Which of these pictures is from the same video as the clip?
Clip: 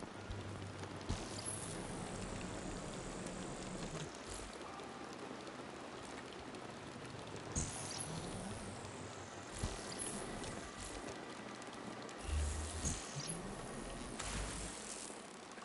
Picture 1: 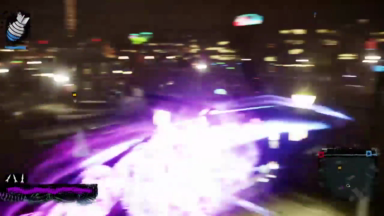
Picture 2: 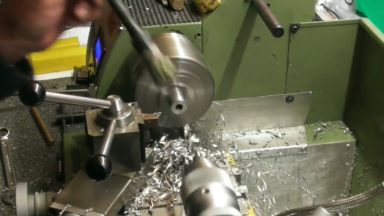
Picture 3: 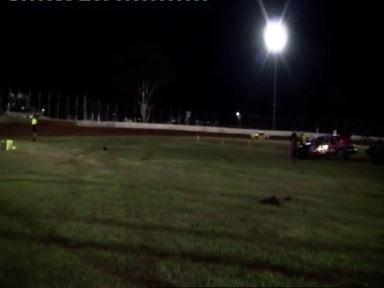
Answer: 1